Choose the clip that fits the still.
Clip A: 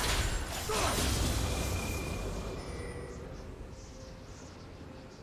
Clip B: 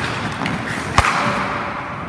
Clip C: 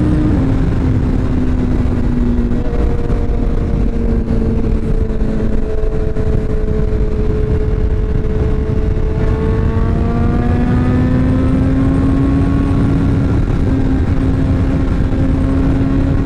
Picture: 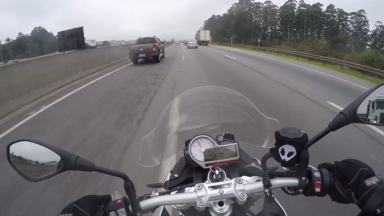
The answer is C